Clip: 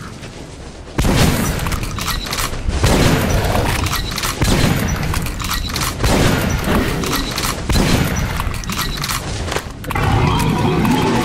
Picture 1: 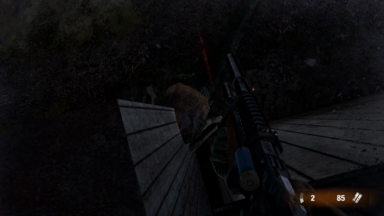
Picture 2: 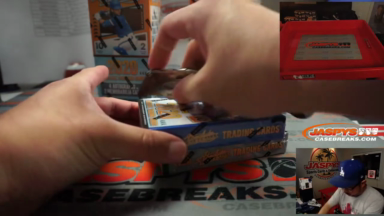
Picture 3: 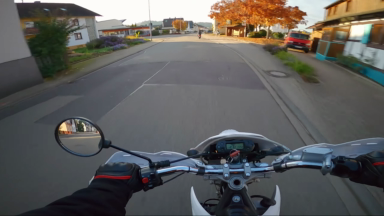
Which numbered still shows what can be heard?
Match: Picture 1